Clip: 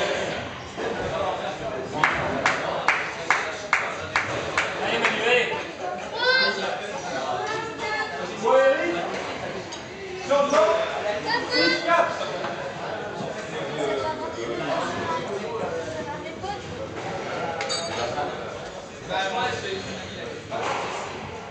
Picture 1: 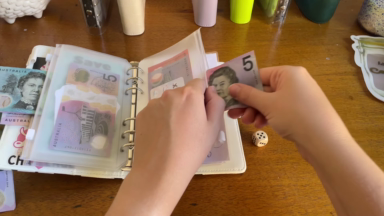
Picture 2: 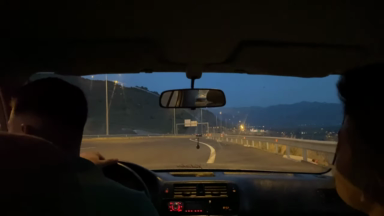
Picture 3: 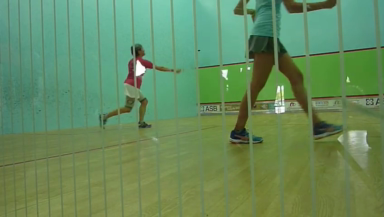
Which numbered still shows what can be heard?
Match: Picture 3